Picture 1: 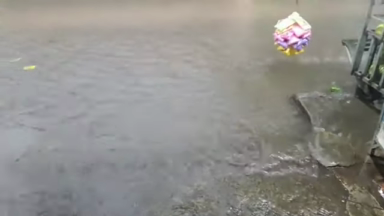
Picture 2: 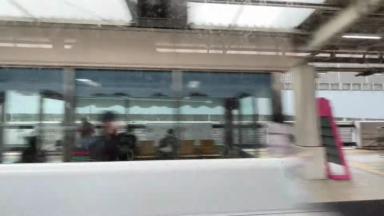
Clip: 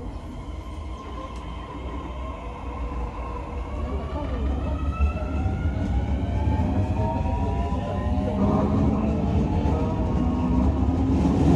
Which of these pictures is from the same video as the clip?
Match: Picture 2